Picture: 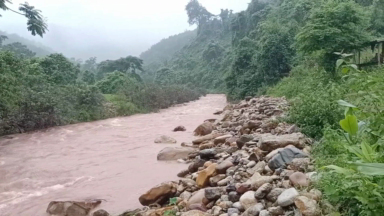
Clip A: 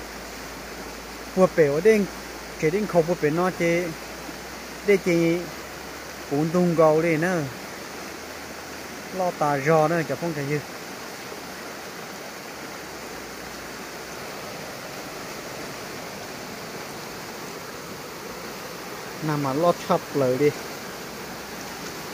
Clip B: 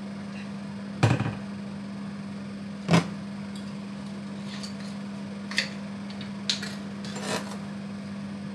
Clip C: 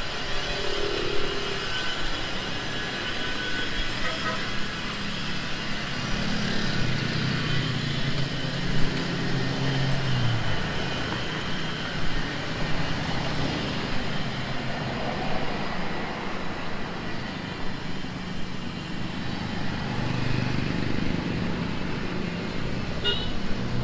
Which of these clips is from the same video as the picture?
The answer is A